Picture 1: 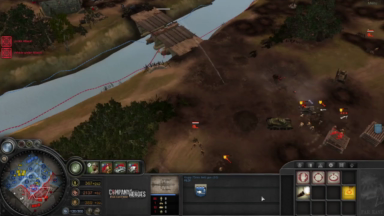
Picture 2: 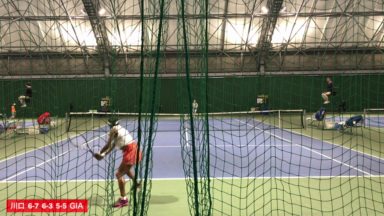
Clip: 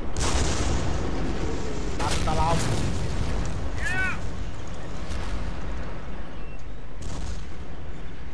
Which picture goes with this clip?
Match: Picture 1